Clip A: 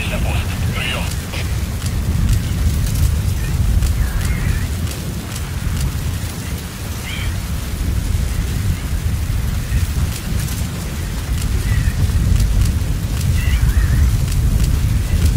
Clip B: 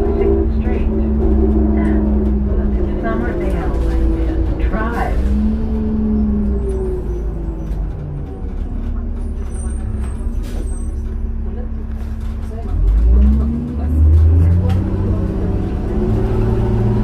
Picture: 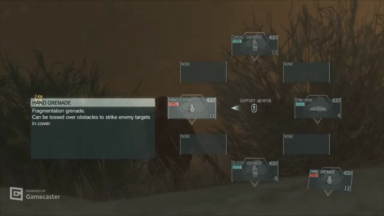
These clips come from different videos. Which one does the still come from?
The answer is A